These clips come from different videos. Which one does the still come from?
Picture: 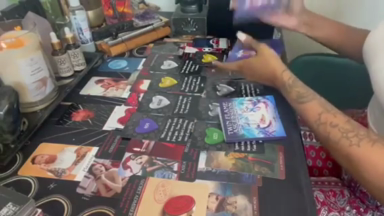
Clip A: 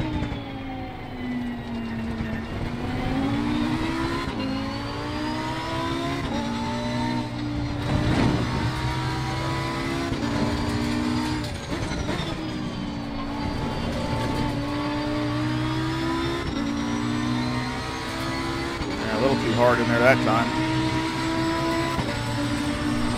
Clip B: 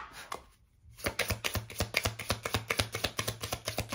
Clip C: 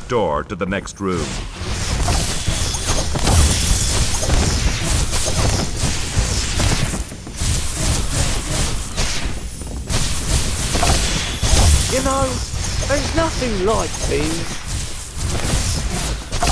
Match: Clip B